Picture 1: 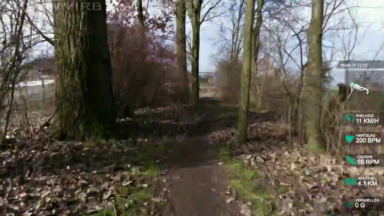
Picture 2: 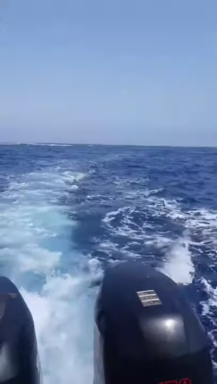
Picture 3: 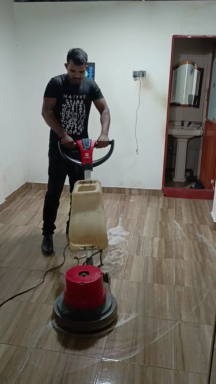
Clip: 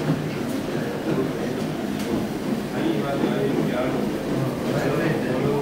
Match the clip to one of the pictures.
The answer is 3